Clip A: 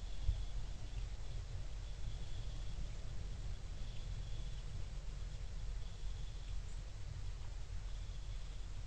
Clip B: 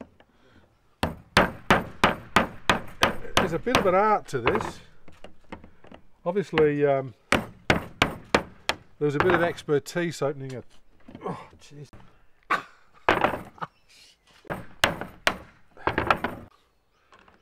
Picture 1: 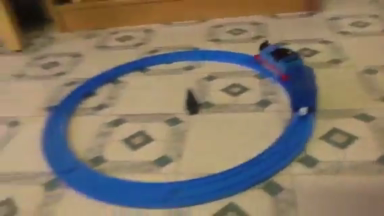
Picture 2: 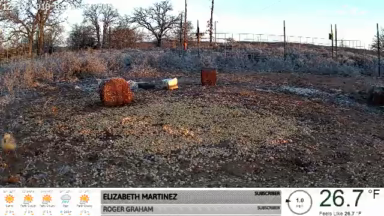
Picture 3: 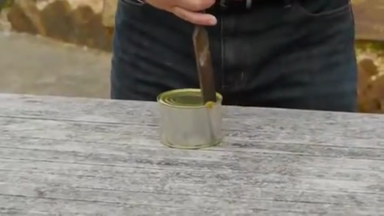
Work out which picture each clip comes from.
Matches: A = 2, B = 3